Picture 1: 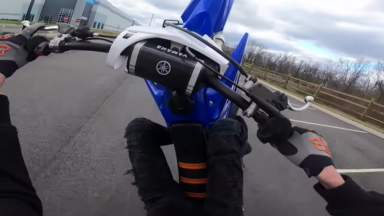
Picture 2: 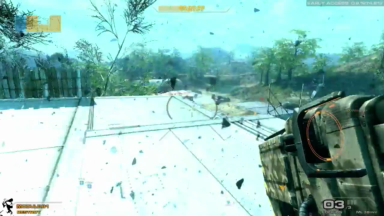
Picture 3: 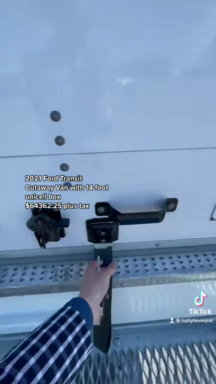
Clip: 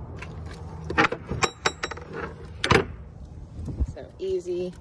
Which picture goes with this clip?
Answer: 3